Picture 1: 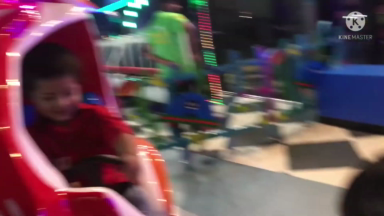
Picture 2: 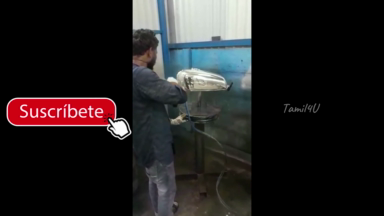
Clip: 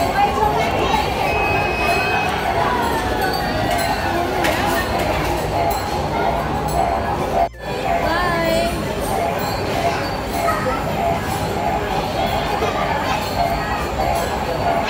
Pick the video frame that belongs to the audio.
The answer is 1